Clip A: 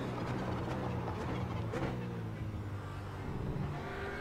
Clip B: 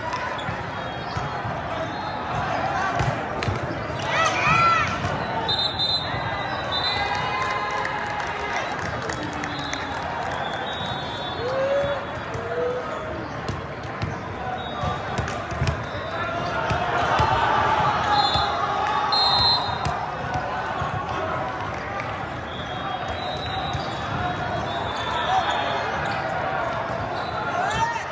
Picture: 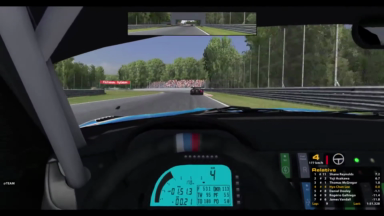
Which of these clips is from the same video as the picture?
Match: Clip A